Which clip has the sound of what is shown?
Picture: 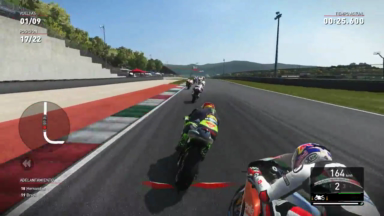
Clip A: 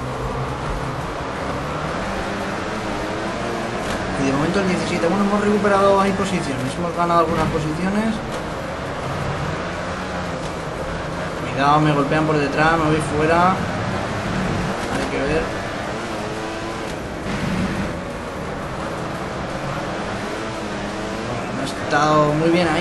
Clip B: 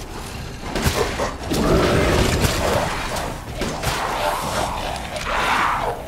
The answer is A